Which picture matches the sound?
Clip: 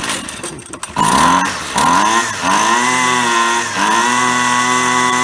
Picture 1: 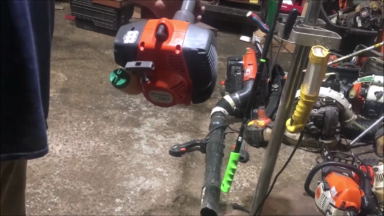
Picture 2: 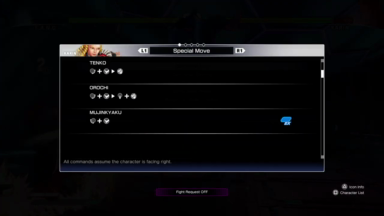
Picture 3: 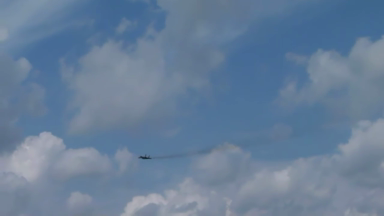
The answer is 1